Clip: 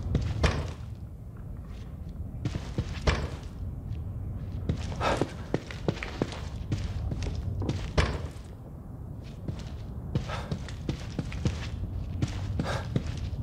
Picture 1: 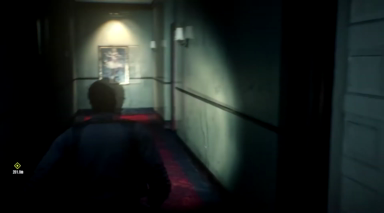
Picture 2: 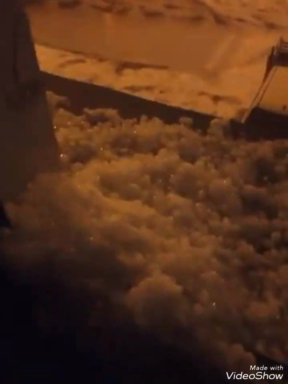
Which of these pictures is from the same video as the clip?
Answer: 1